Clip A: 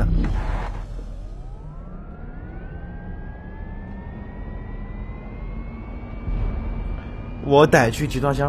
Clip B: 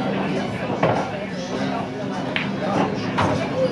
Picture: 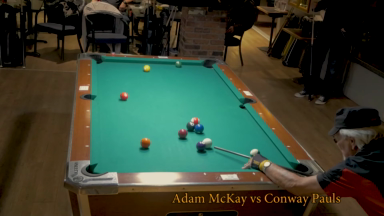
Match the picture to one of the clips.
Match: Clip B